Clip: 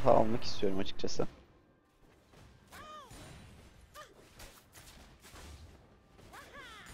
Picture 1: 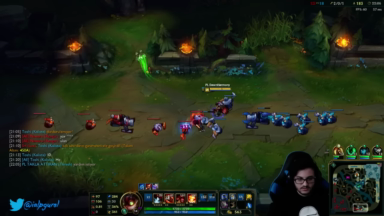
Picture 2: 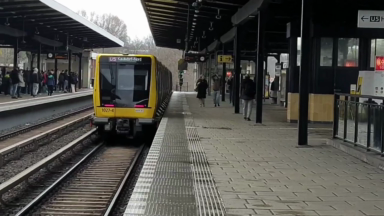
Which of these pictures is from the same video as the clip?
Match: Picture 1